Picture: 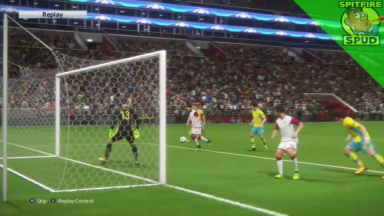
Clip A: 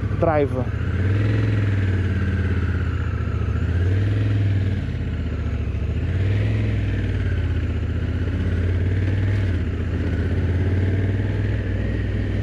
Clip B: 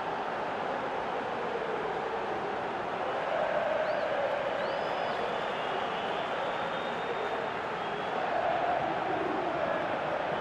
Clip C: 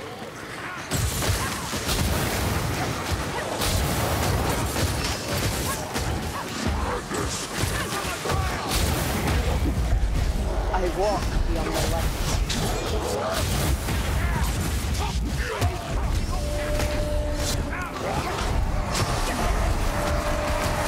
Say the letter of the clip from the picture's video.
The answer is B